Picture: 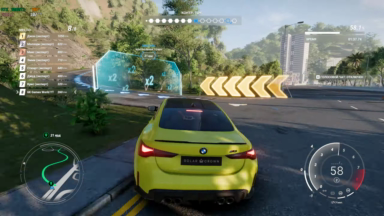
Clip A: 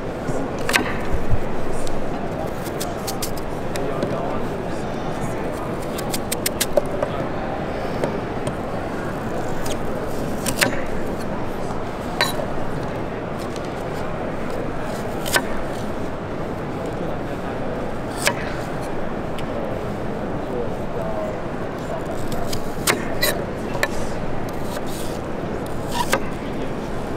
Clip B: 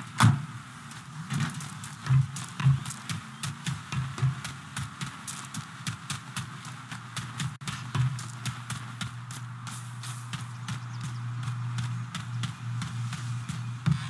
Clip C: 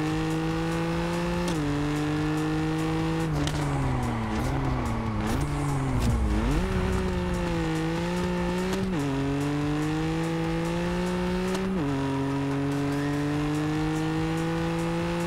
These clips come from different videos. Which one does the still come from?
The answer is C